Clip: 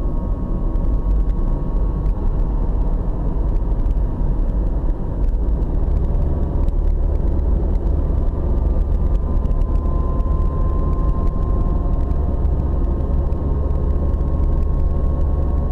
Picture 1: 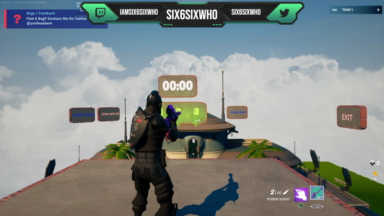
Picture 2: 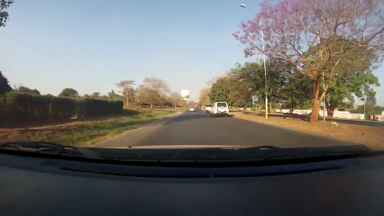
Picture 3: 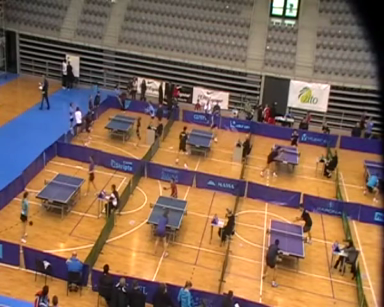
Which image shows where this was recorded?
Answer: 2